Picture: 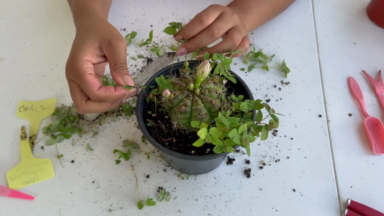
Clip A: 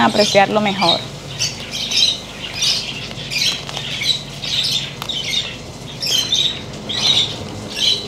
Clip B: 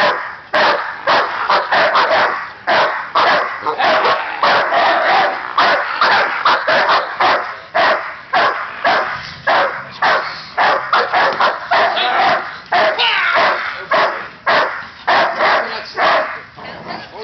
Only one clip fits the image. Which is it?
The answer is A